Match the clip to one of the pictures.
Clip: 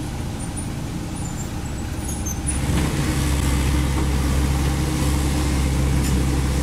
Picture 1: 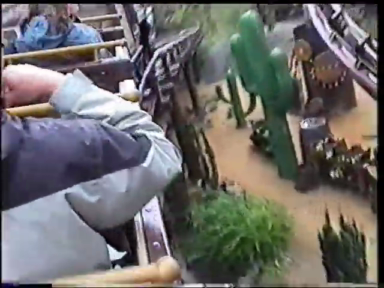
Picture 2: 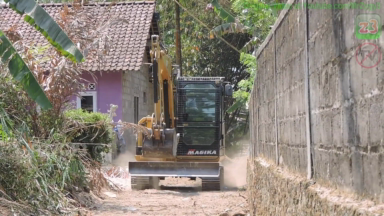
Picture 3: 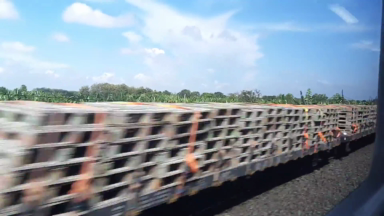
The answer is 2